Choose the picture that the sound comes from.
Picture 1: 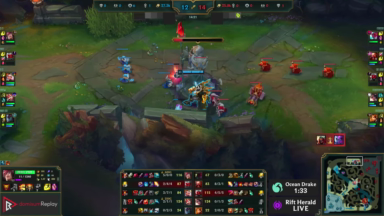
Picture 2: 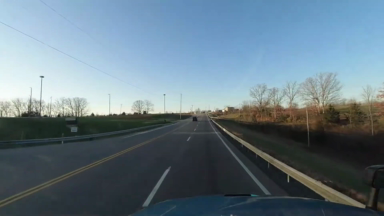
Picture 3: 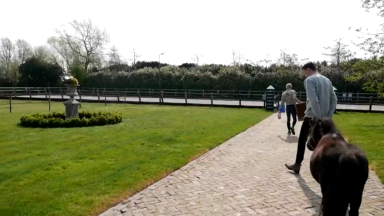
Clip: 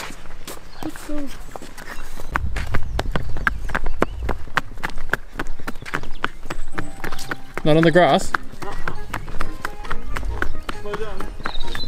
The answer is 3